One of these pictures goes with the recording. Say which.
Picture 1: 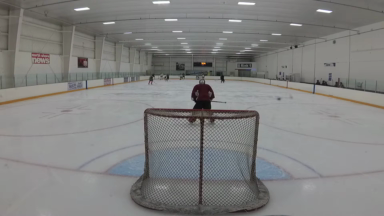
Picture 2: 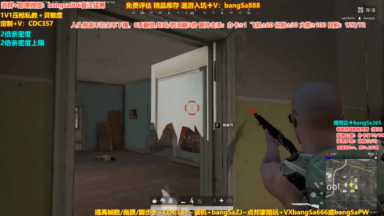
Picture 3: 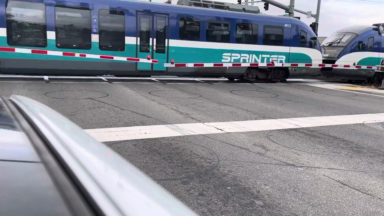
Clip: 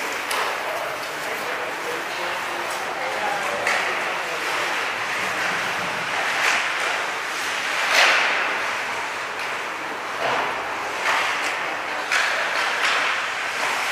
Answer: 1